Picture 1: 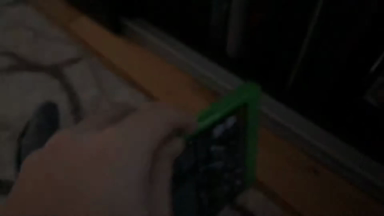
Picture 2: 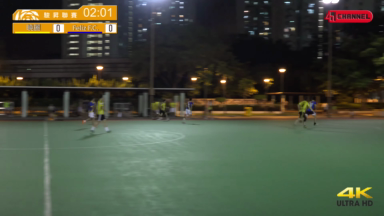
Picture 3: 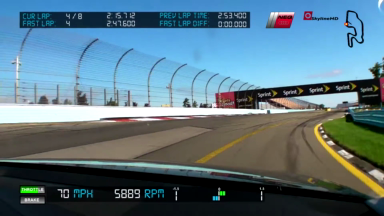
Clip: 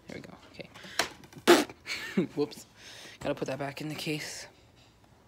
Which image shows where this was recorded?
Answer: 1